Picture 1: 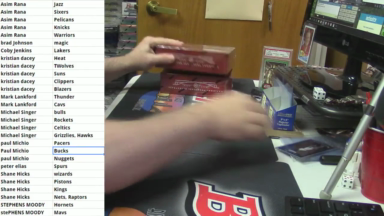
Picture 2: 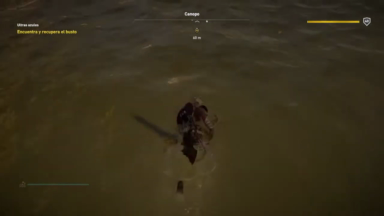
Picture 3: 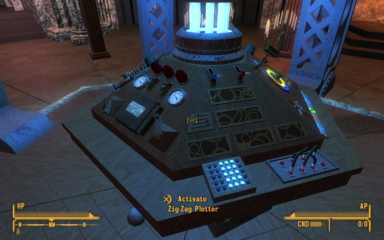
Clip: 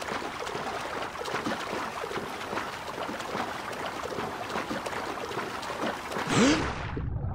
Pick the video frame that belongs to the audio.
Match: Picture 2